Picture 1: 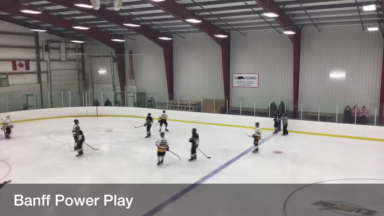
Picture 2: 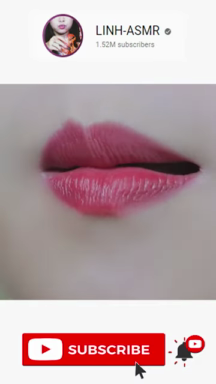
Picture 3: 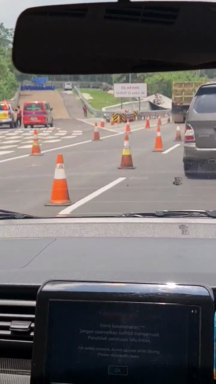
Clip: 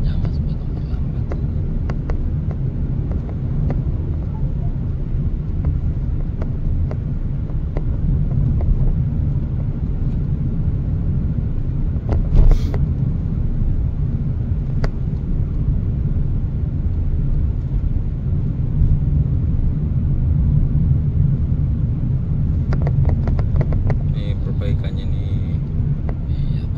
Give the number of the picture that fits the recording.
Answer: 3